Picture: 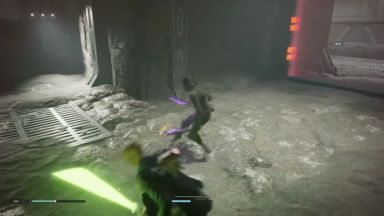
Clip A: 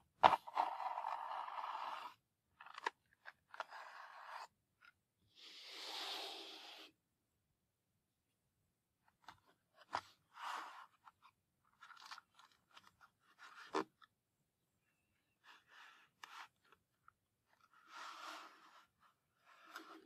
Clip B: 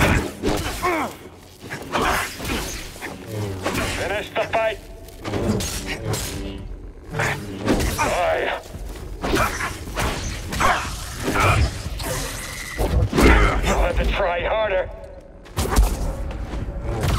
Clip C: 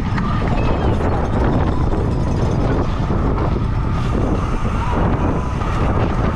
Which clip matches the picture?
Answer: B